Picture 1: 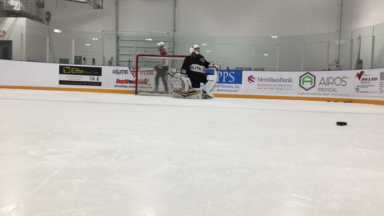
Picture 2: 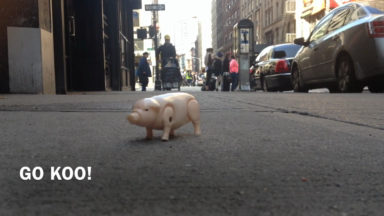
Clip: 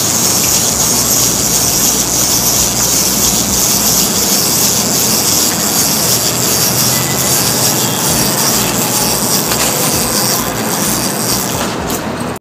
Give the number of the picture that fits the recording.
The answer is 2